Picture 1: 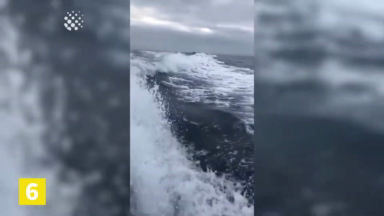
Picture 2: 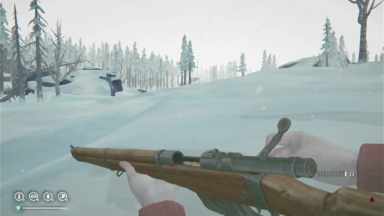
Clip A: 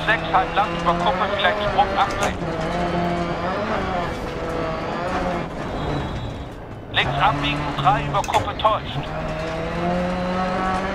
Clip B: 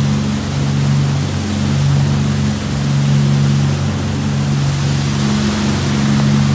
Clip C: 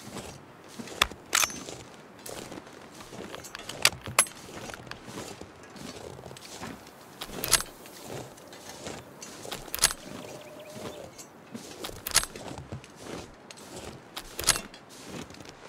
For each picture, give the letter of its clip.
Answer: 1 B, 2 C